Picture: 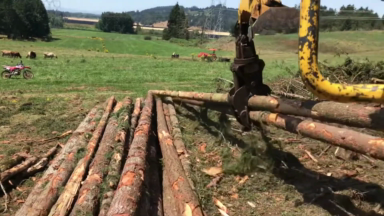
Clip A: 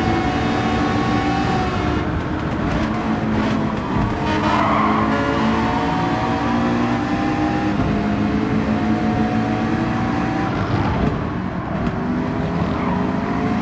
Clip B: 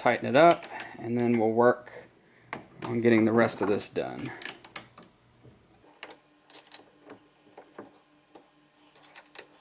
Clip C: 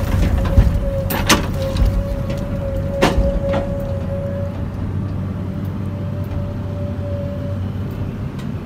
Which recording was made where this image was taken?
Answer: C